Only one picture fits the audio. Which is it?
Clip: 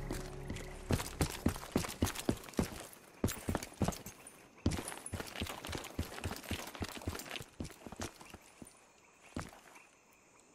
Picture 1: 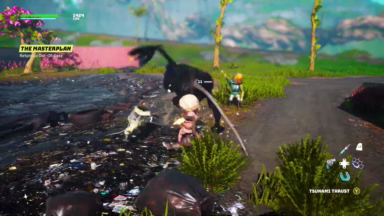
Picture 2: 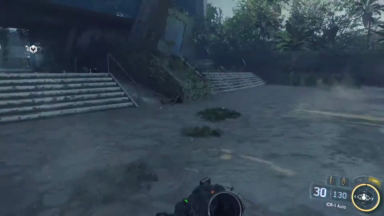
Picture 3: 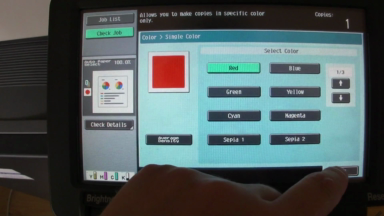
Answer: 2